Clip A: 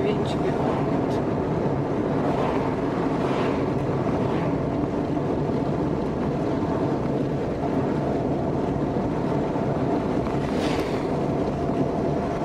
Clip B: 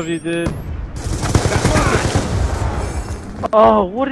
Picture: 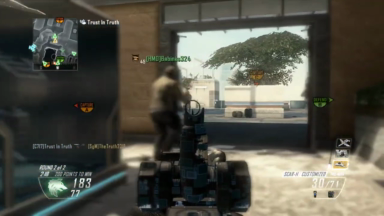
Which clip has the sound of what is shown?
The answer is B